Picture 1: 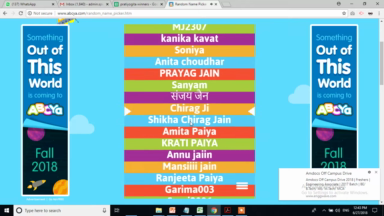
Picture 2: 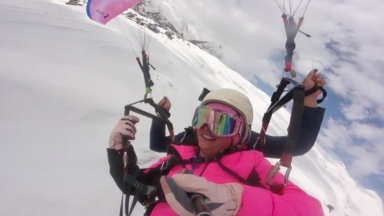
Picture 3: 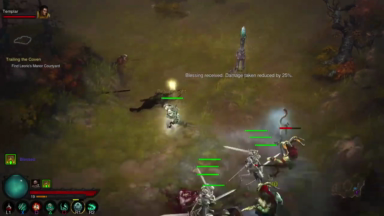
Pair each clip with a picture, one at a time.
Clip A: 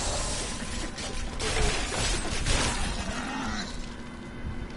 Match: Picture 3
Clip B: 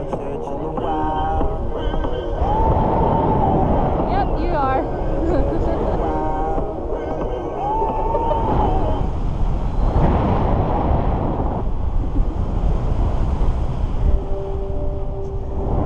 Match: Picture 2